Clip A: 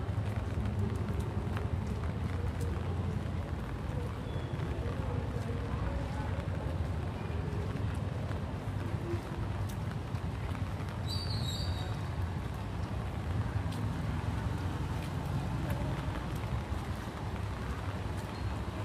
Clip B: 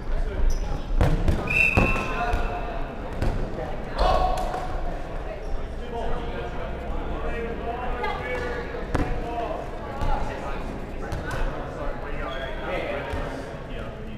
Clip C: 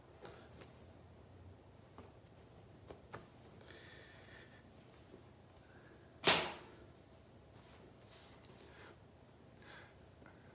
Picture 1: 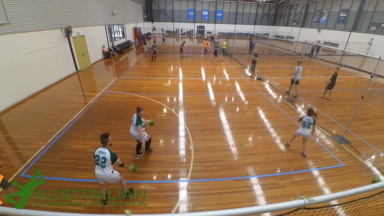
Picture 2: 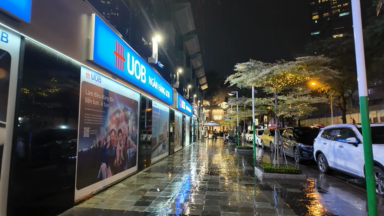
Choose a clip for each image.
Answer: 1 B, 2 A